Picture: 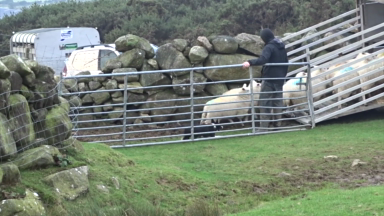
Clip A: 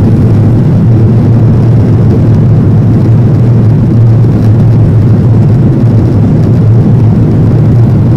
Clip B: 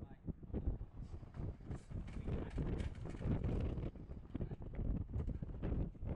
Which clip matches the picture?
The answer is B